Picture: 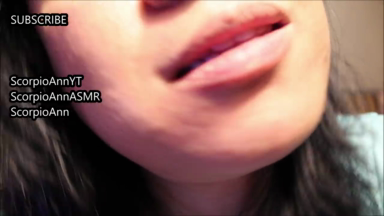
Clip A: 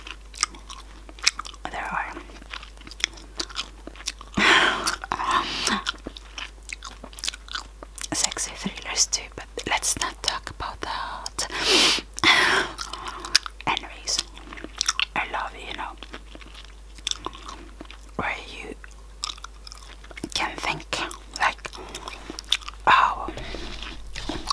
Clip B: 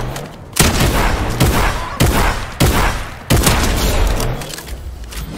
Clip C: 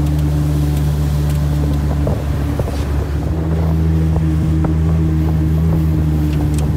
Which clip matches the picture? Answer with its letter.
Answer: A